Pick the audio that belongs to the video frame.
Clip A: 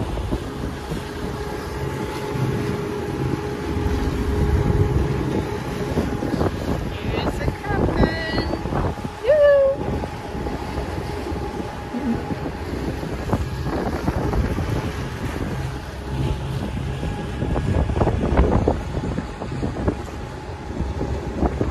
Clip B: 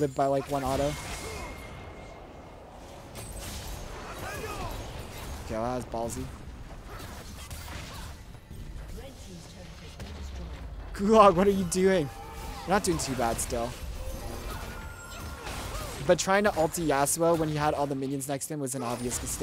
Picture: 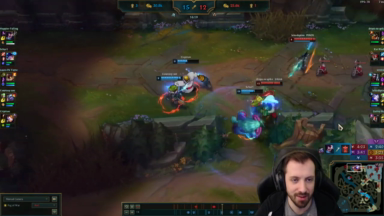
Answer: B